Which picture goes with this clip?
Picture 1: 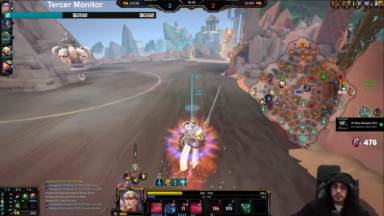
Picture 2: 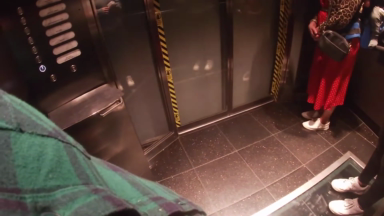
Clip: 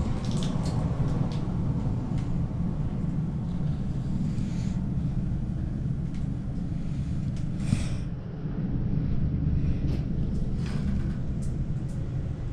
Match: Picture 2